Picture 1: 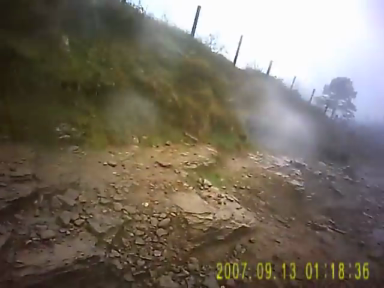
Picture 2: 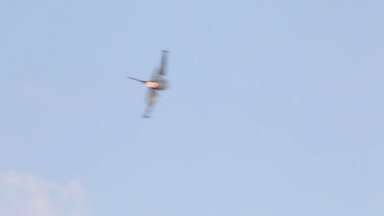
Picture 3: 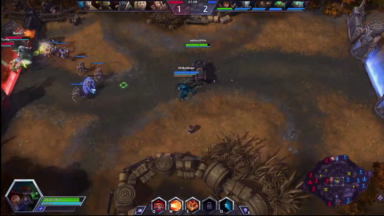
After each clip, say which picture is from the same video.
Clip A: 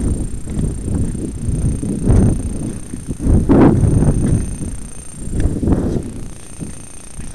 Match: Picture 1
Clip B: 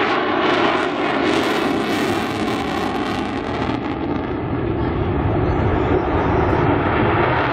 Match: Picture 2